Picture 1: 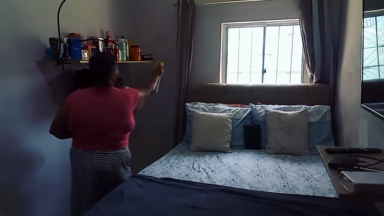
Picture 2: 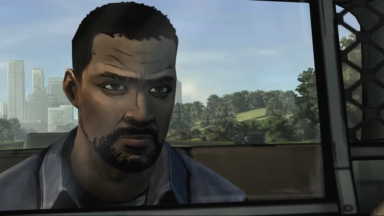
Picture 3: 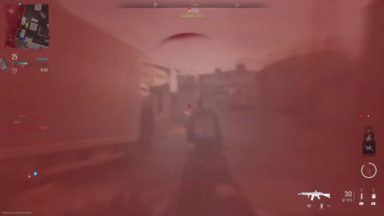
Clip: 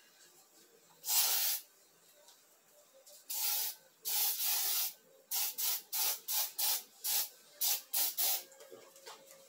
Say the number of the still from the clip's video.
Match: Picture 1